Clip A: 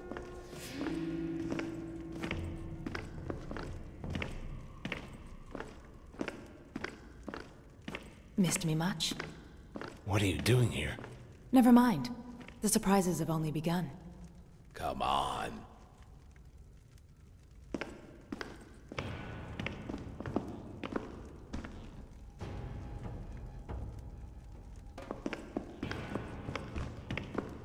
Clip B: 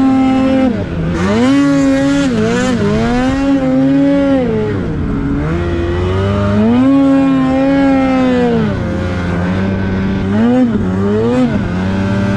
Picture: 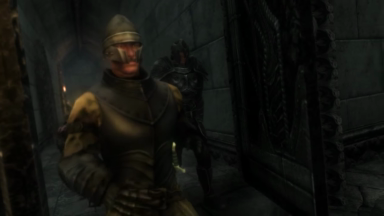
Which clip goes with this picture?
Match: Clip A